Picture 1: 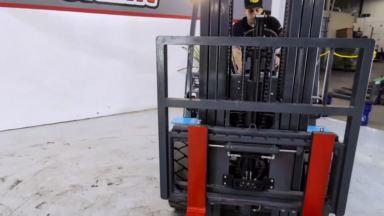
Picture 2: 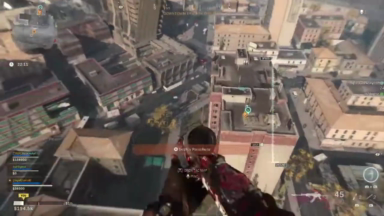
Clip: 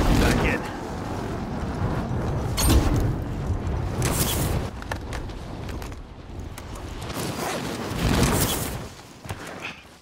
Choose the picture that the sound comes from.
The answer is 2